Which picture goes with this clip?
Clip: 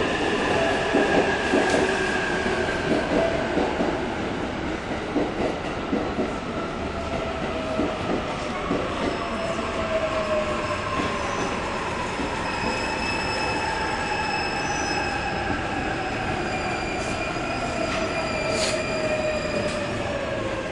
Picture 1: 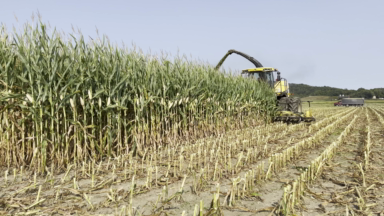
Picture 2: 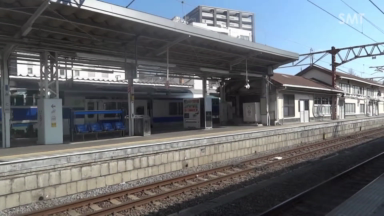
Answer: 2